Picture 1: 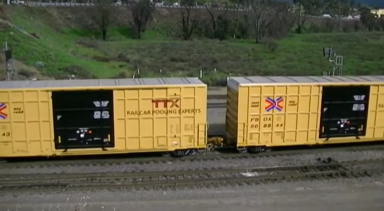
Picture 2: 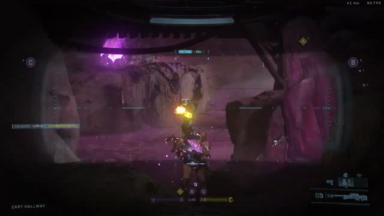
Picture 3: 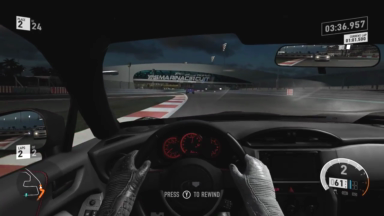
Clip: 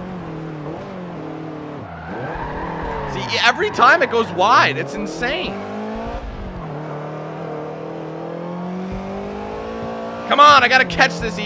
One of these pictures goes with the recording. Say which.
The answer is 3